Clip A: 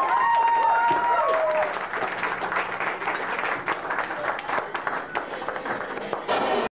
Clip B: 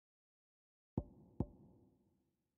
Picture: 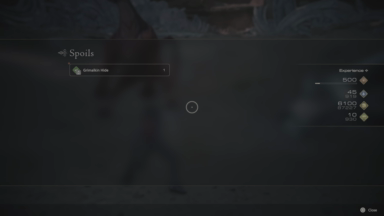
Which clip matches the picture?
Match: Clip B